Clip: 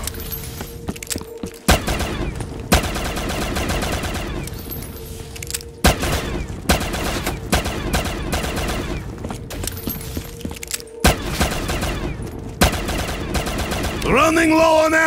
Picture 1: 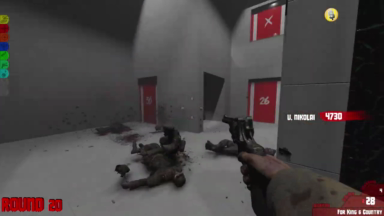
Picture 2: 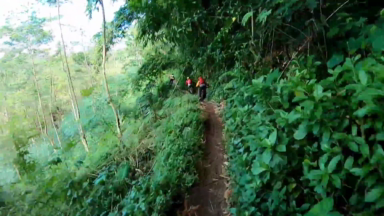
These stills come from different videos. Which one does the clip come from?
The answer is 1